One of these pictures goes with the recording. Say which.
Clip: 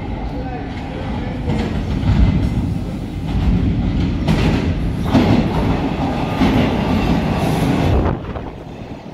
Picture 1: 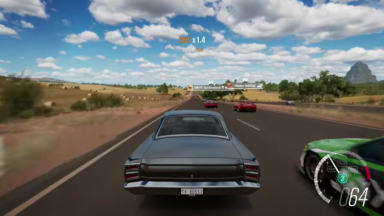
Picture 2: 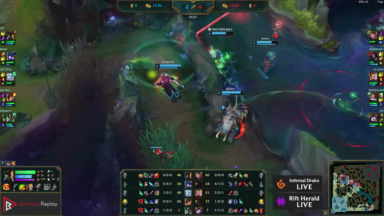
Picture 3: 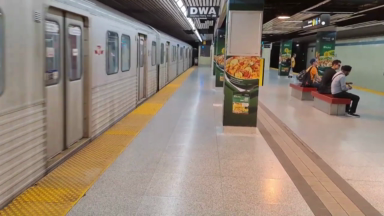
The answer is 3